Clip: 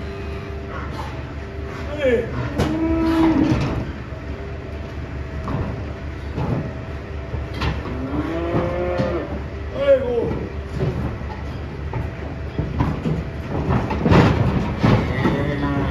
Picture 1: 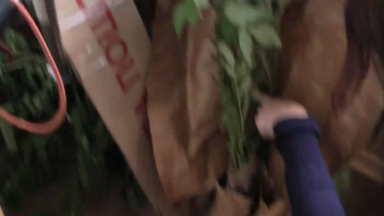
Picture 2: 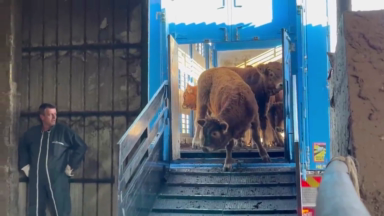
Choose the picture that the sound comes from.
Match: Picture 2